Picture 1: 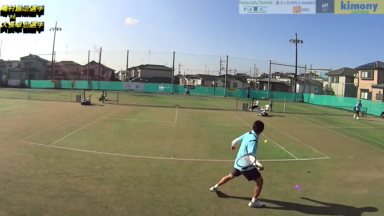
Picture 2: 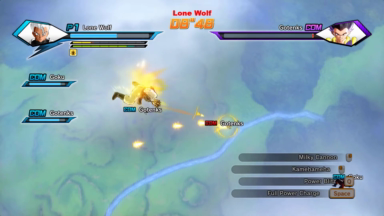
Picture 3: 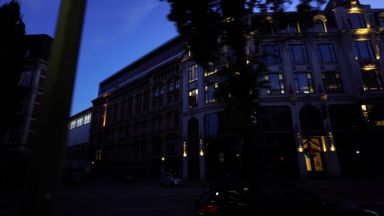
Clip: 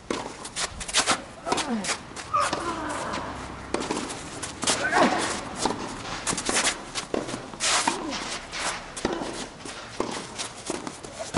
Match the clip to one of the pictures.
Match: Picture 1